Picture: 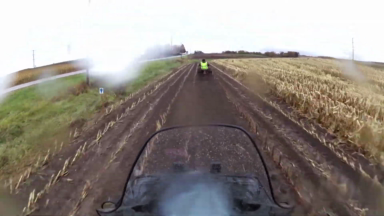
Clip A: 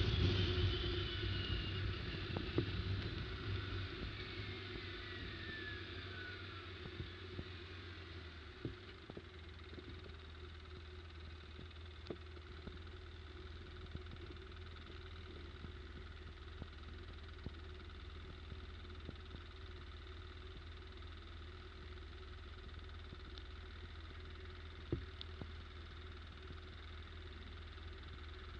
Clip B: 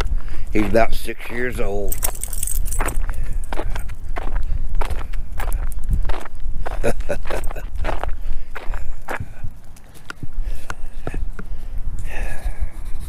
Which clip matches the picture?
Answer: A